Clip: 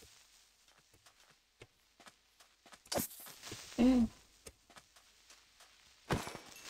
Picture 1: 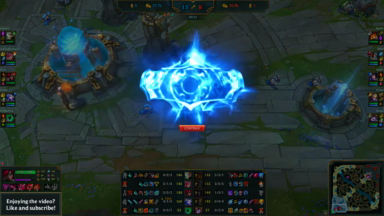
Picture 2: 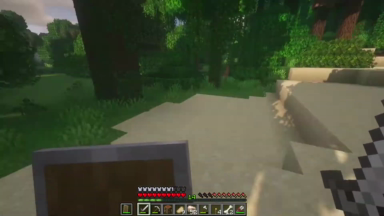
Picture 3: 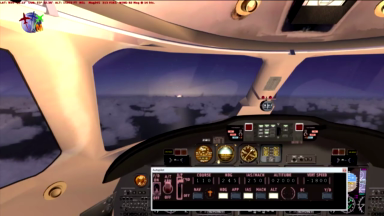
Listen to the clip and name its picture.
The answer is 2